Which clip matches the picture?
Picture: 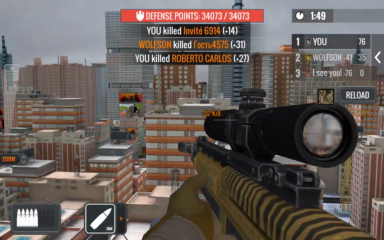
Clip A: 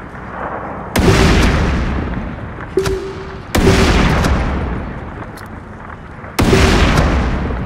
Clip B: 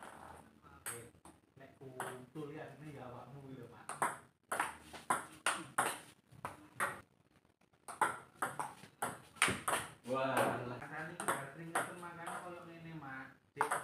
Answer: A